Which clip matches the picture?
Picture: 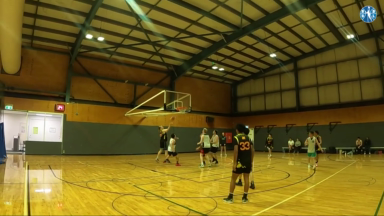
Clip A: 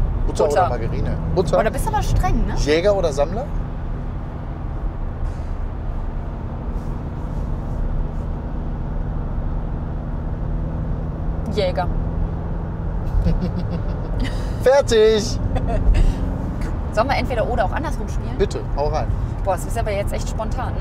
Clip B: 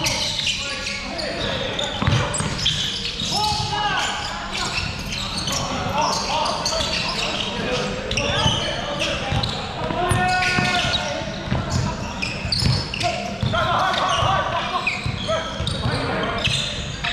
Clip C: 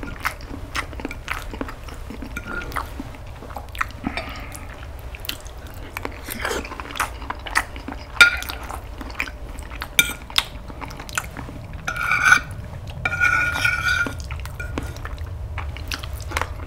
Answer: B